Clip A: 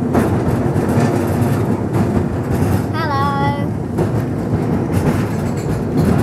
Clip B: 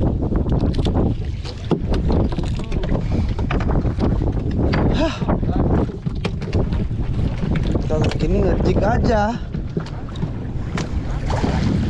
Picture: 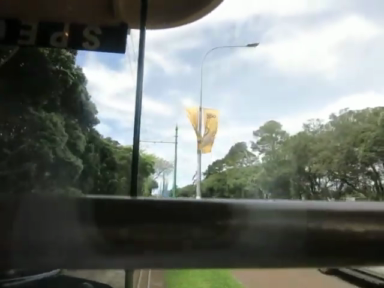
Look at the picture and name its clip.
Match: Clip A